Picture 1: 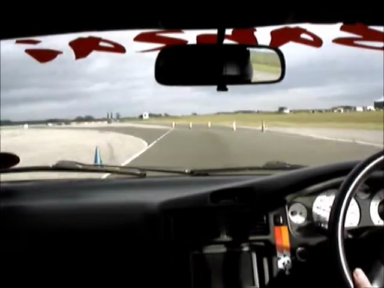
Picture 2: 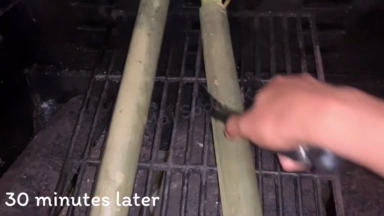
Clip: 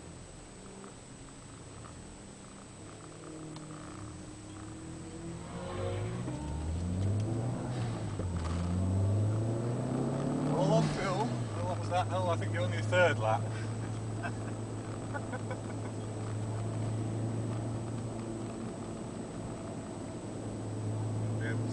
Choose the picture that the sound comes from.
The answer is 1